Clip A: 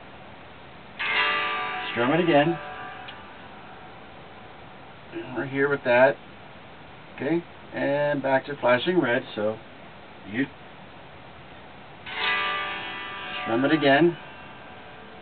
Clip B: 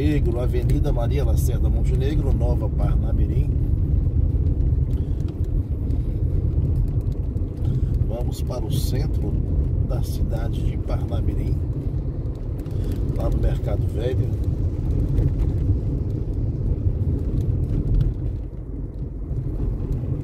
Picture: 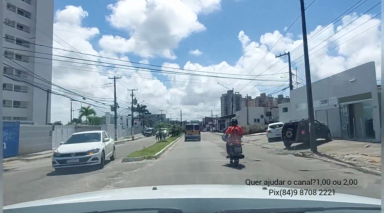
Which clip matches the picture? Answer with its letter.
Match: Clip B